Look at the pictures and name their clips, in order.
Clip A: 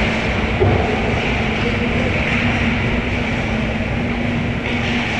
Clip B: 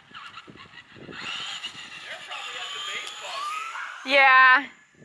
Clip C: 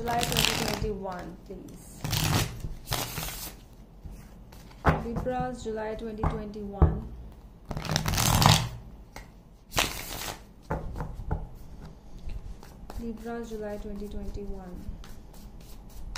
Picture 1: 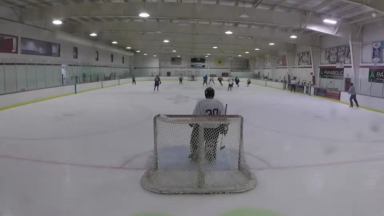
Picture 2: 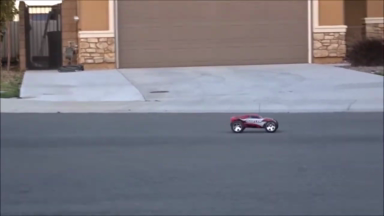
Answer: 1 A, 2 B